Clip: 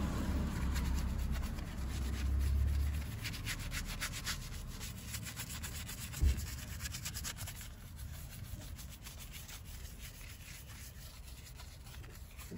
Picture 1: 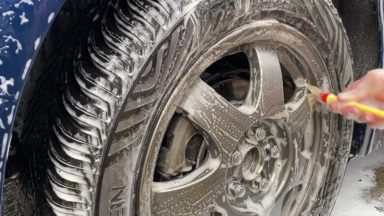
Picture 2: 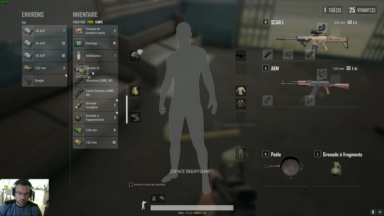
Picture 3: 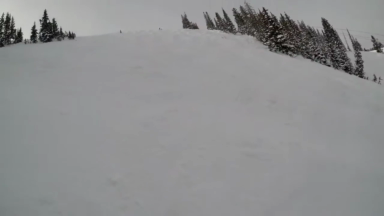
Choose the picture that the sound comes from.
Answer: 1